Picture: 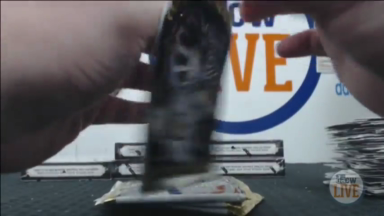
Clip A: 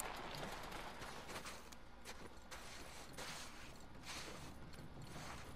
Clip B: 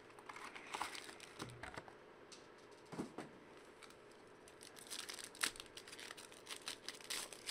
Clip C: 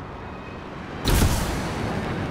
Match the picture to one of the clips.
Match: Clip B